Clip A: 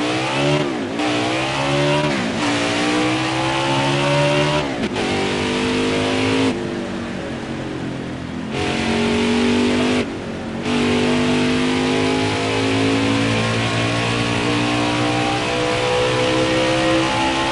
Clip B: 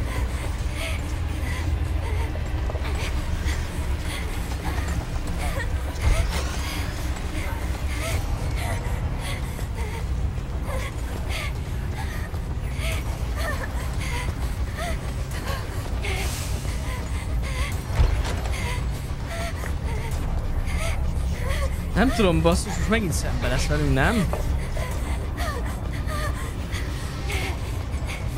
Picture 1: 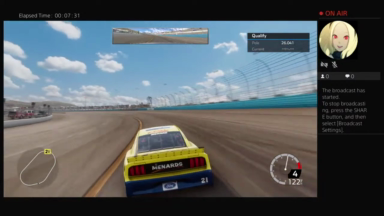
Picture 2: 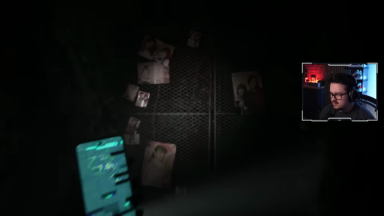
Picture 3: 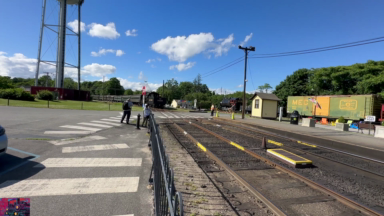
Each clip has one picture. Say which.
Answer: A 1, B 2